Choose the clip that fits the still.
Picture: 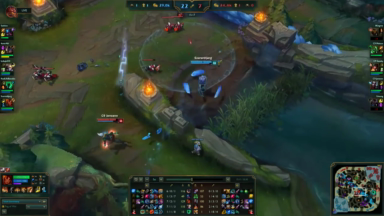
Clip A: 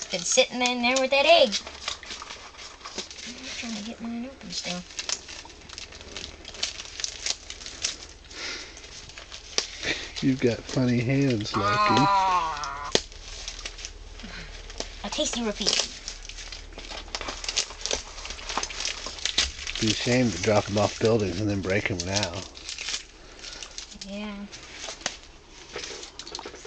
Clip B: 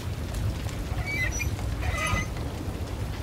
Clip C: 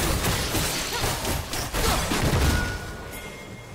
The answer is C